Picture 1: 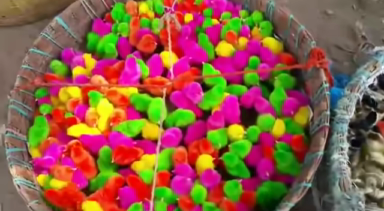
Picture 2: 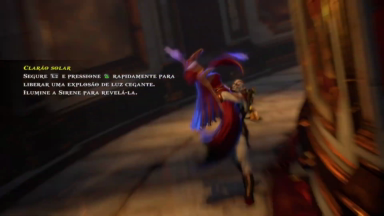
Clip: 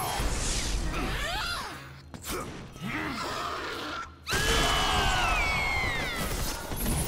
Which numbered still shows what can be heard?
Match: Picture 2